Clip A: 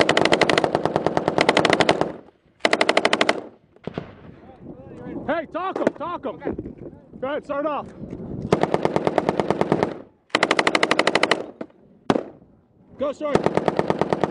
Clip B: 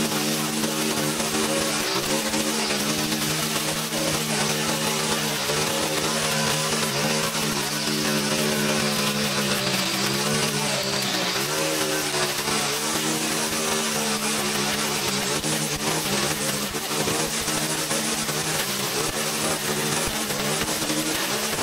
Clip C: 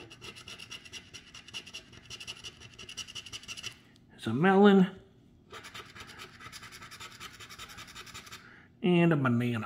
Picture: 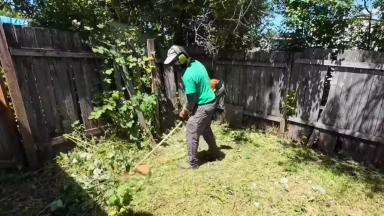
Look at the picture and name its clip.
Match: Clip B